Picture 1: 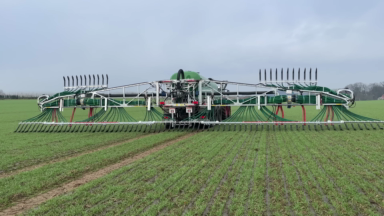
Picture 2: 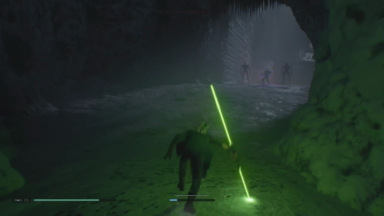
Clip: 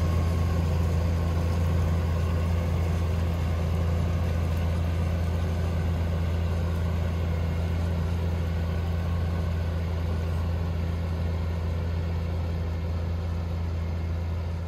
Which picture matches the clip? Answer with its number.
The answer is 1